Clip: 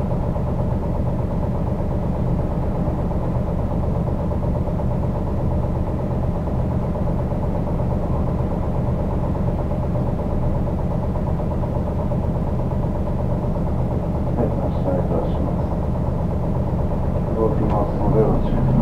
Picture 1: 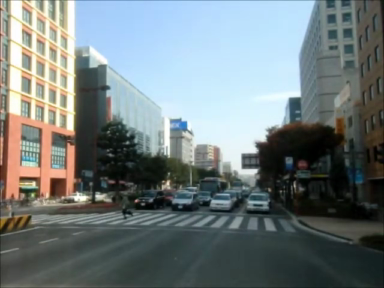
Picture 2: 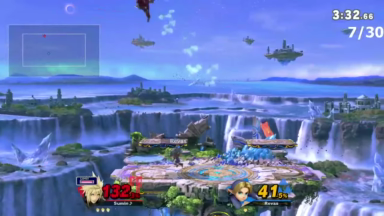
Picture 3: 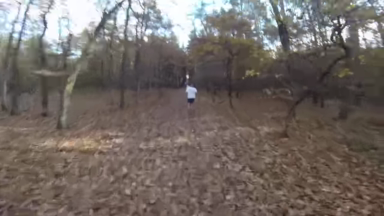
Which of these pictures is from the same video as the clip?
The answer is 1